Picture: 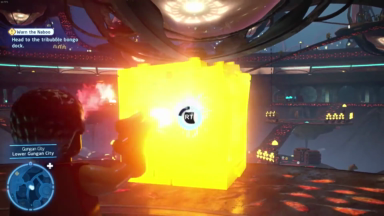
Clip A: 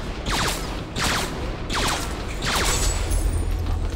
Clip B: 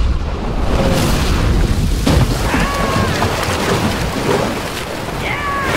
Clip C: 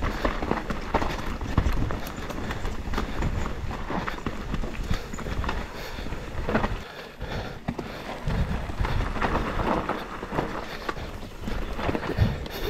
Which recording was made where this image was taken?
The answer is A